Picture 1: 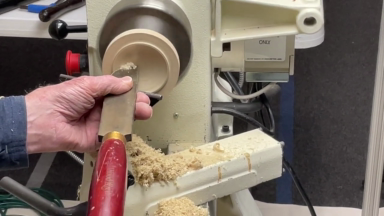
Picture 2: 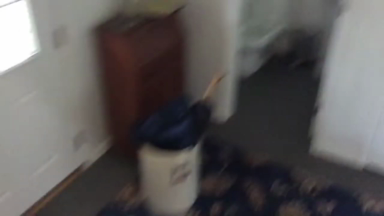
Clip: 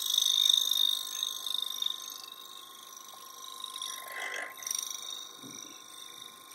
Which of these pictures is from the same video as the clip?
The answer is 1